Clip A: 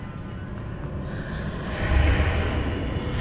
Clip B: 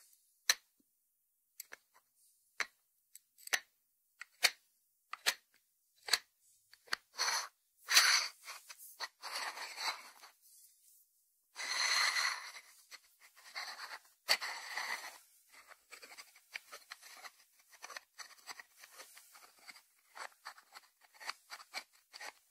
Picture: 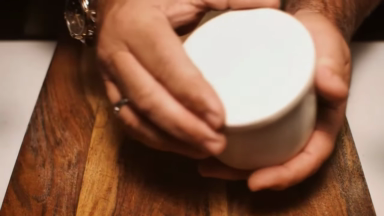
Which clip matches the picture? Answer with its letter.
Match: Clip B